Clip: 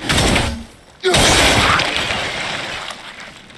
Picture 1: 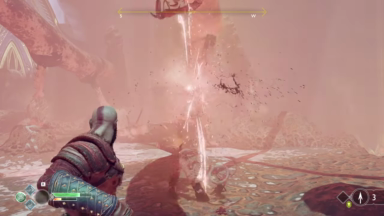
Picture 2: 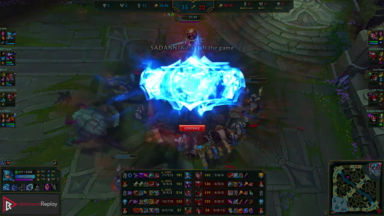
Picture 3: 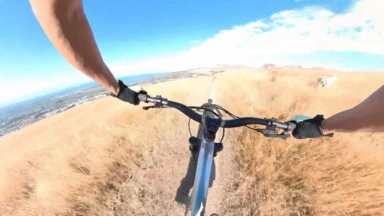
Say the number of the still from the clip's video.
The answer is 1